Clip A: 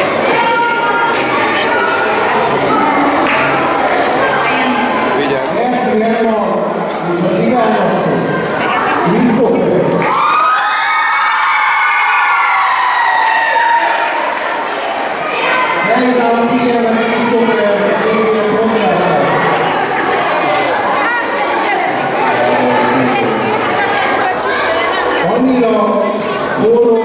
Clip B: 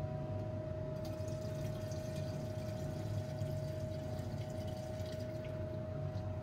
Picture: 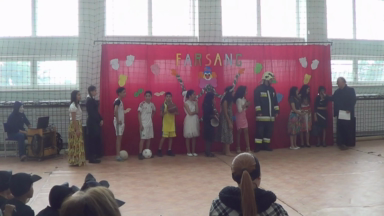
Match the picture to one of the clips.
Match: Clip A